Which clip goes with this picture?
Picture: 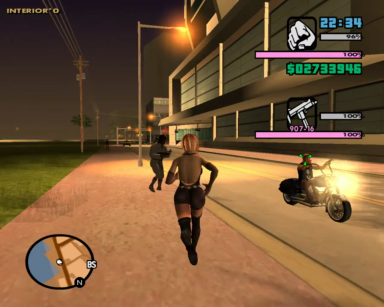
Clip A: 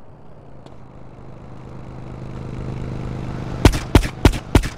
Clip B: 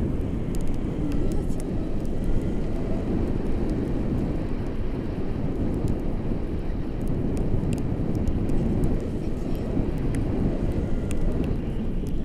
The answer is A